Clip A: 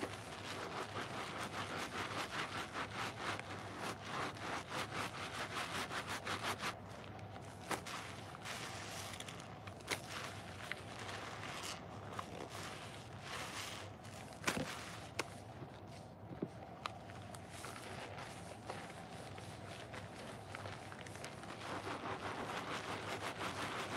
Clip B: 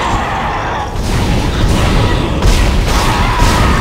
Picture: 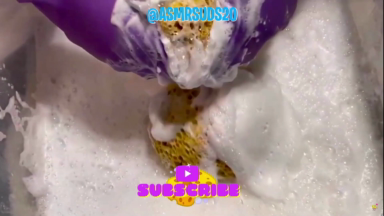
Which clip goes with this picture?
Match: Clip A